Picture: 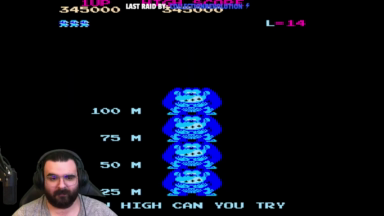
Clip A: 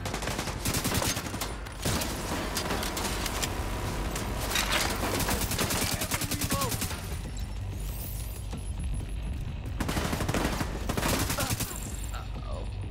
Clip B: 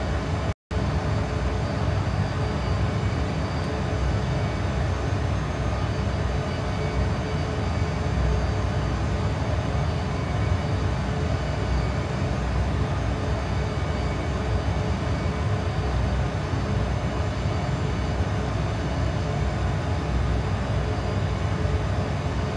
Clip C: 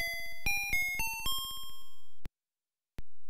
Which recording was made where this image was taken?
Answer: C